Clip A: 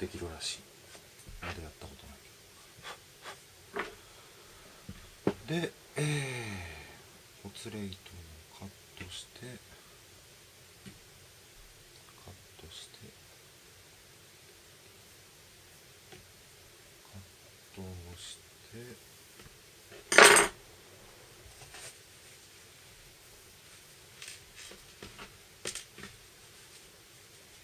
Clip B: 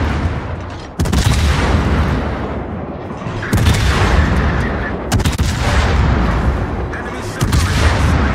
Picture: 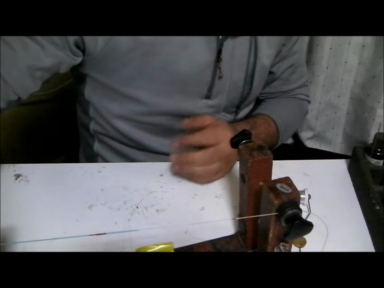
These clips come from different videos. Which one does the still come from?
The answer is A